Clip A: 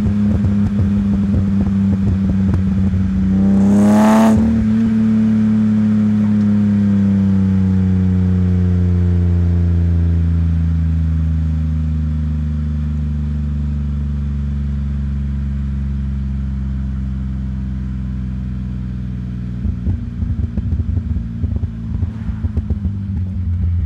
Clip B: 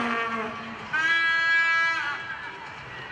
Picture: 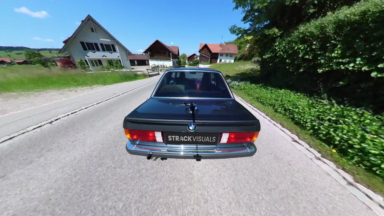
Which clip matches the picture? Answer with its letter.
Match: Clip A